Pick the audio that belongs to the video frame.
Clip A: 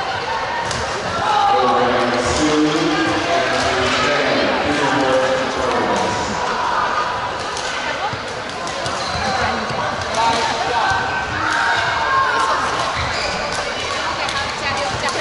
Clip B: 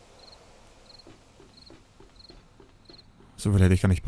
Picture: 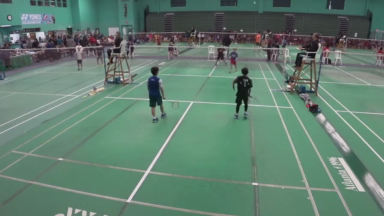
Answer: A